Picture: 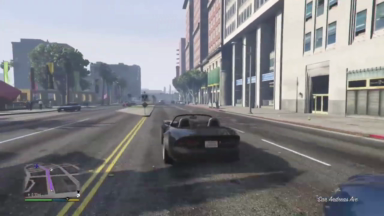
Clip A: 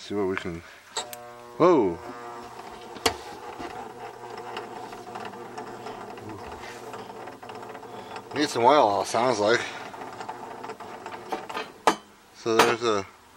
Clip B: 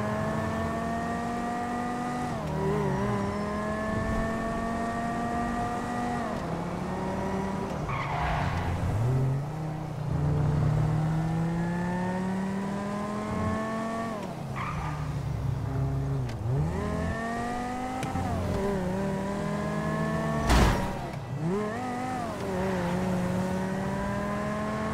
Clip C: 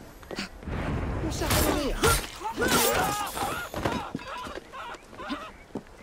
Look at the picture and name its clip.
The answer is B